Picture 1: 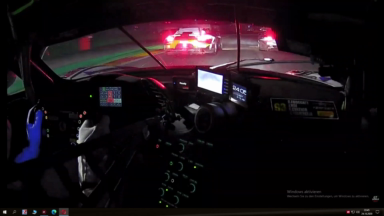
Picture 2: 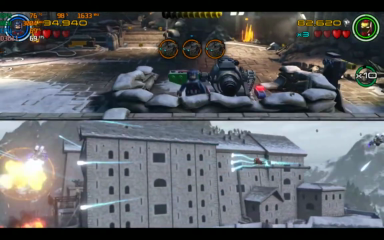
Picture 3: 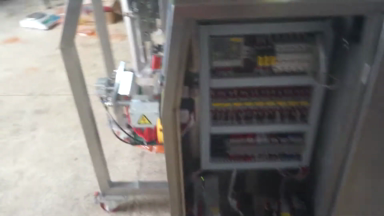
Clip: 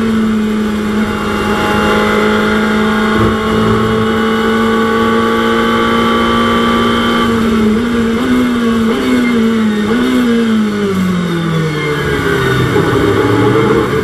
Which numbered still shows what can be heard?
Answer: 1